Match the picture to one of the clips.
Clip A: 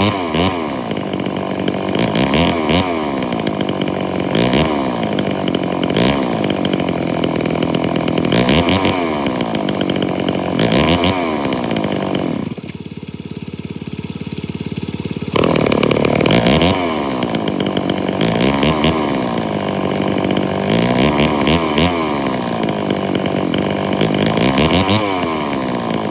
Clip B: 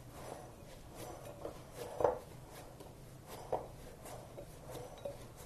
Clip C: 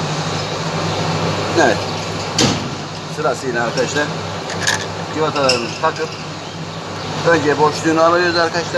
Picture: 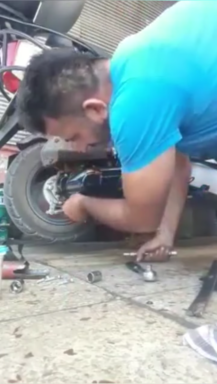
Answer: C